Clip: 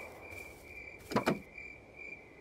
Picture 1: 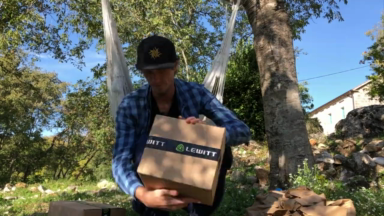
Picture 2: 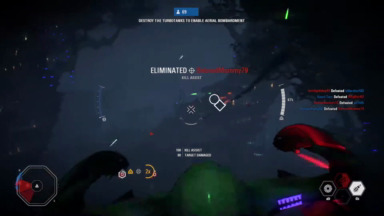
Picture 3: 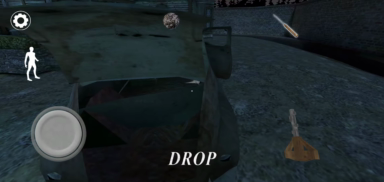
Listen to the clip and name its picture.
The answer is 3